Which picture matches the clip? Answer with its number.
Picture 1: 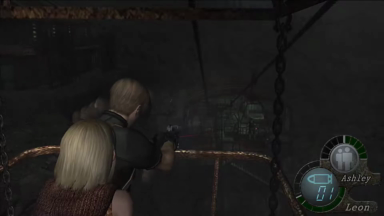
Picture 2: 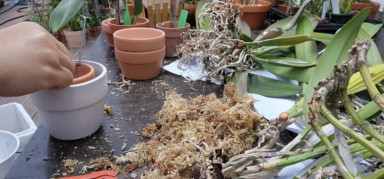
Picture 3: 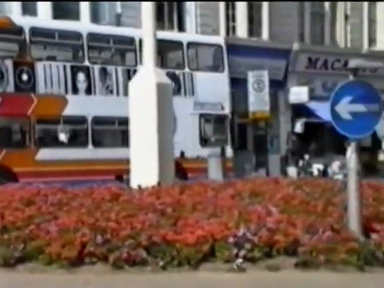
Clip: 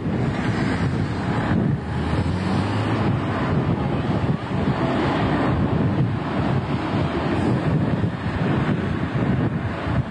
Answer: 3